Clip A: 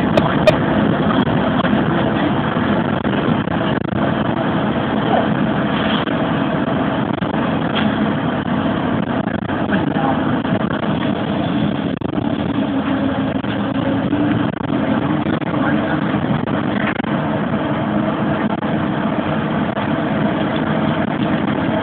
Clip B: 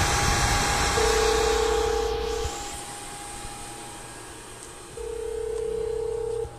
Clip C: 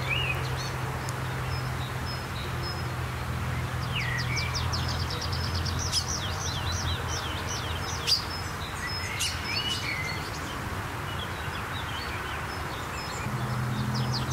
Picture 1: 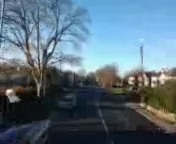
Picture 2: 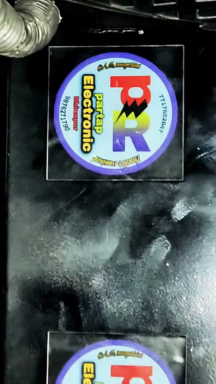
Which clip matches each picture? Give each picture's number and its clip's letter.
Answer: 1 A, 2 B